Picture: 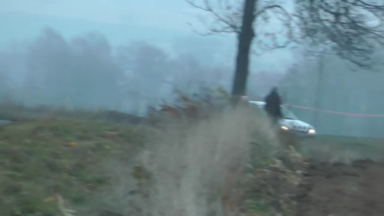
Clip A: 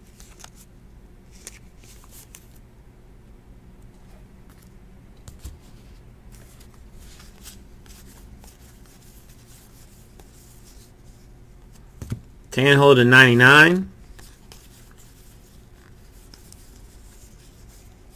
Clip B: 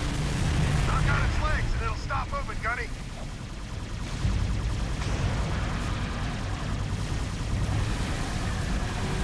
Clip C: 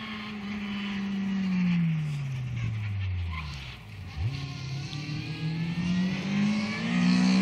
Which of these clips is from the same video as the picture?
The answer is C